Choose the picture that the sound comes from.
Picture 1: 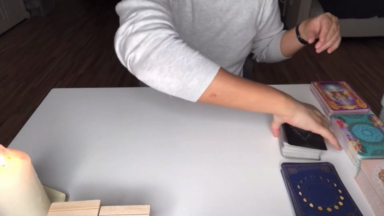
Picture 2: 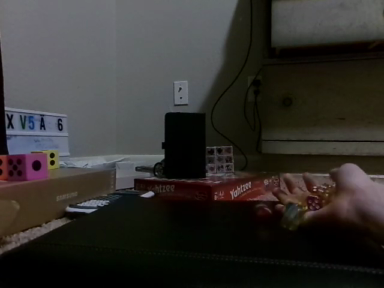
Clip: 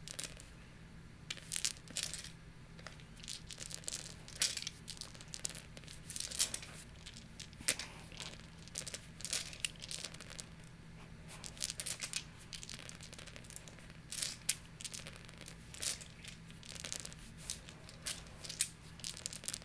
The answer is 2